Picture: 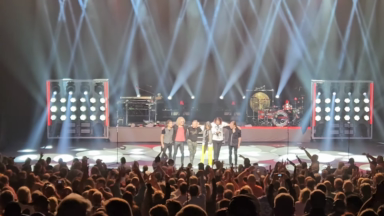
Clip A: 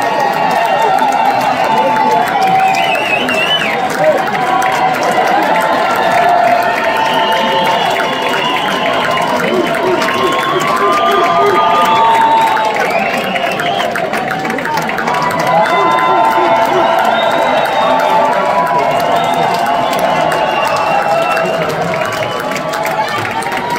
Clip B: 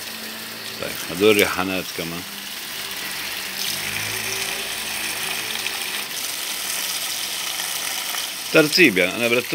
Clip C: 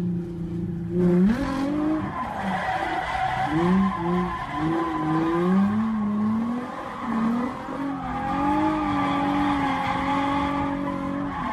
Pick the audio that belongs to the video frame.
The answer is A